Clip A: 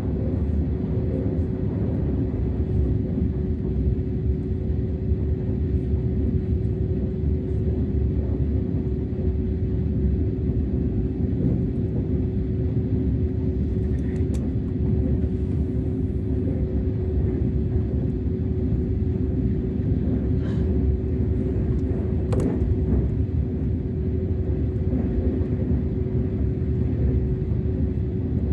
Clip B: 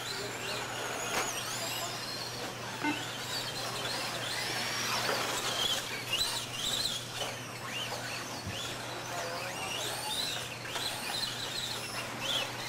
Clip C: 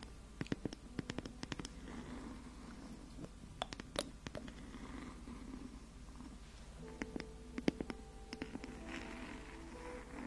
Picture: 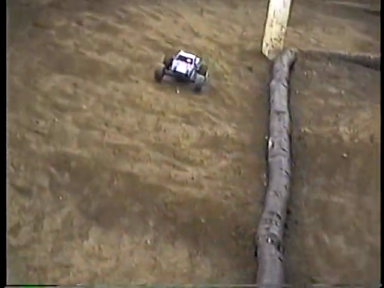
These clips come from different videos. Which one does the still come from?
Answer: B